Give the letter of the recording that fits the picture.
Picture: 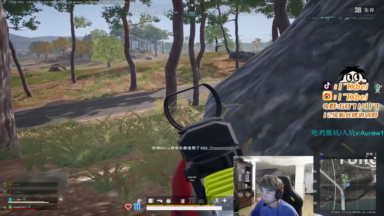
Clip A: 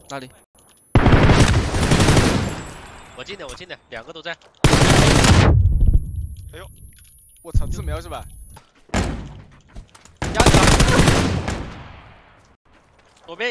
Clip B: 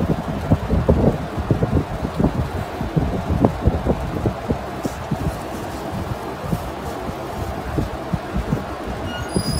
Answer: A